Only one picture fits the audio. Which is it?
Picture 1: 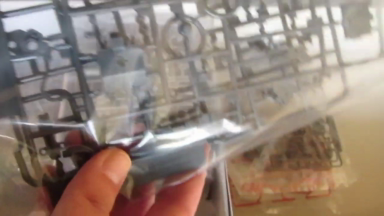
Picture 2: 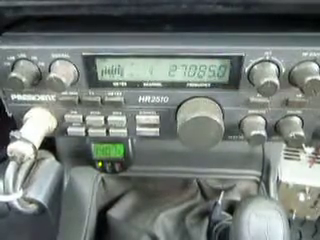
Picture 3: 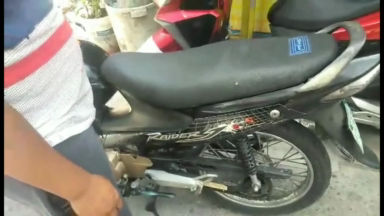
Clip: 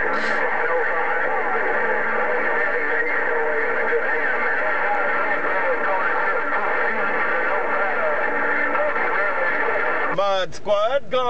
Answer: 2